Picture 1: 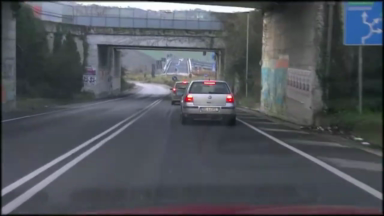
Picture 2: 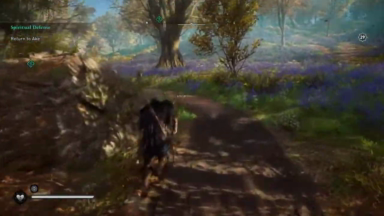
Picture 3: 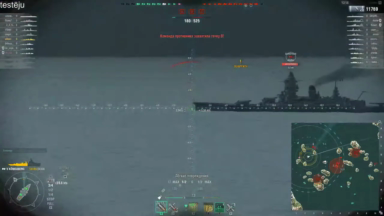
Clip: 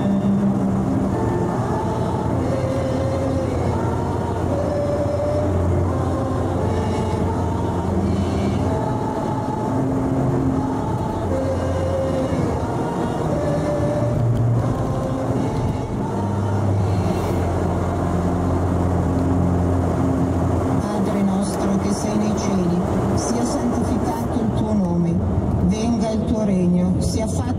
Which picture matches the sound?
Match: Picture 1